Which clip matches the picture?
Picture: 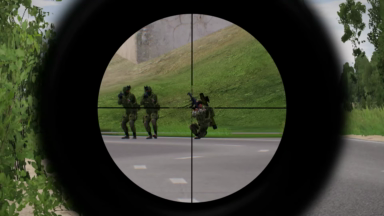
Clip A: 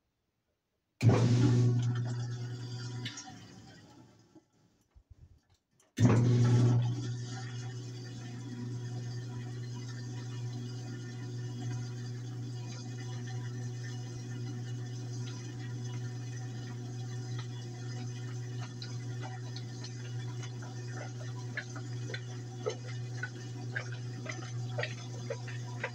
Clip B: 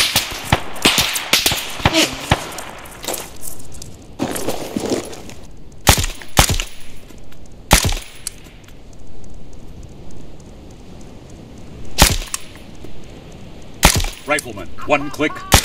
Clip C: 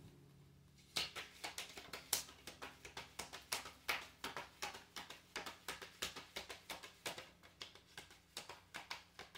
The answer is B